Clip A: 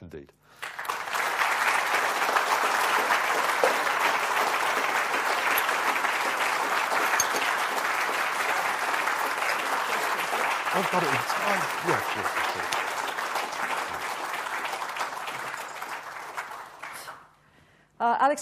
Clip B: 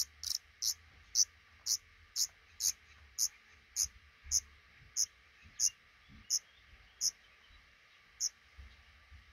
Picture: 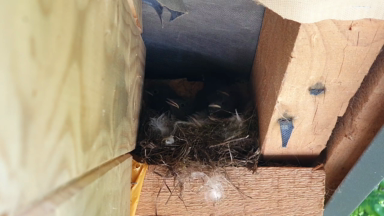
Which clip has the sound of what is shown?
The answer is B